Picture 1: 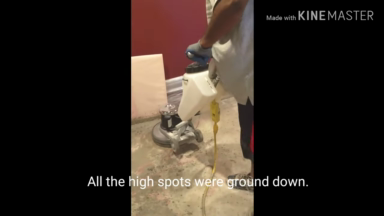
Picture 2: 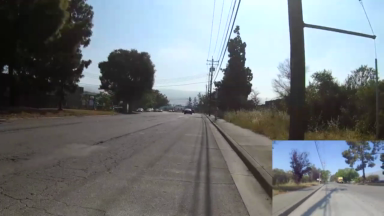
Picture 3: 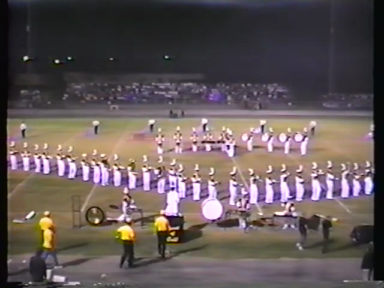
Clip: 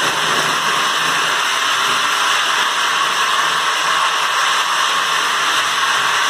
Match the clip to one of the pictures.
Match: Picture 1